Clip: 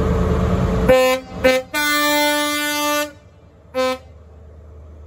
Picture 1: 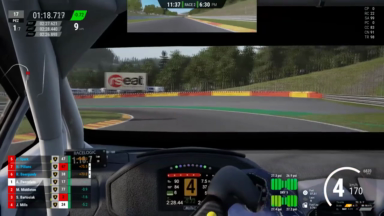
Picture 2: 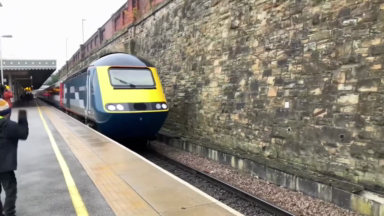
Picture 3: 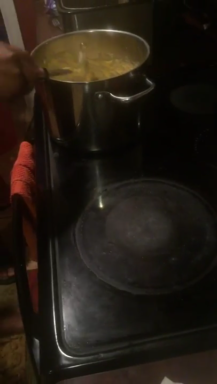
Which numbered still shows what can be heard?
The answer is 2